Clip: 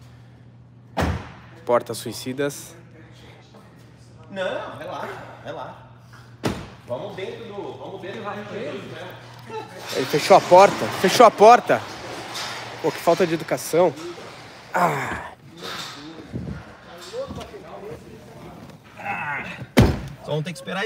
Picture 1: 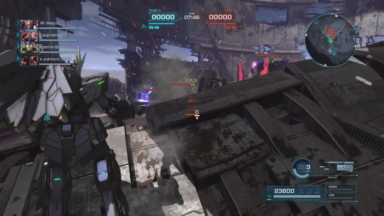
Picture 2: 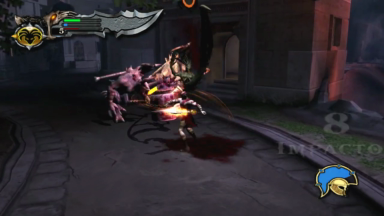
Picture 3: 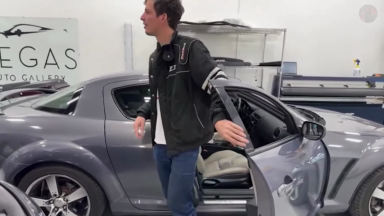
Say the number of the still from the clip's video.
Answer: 3